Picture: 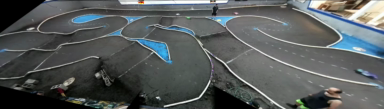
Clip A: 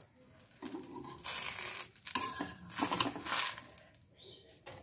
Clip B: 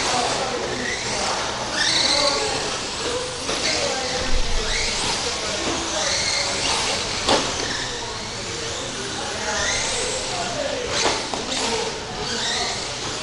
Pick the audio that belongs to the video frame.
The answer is B